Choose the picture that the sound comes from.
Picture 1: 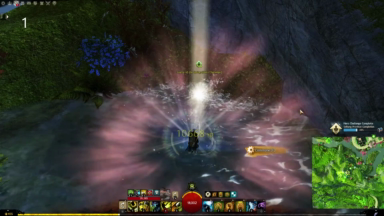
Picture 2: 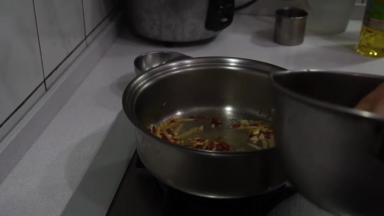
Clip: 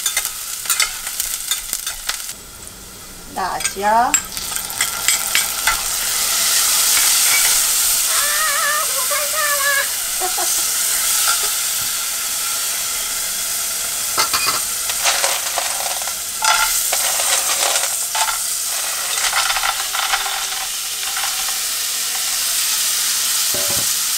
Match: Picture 2